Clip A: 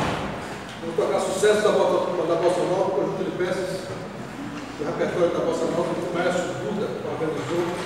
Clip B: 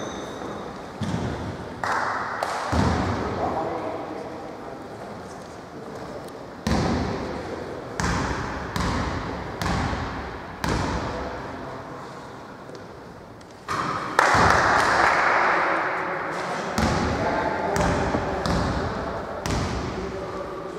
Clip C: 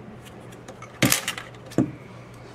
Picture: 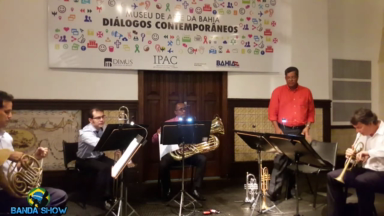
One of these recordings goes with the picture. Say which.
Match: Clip A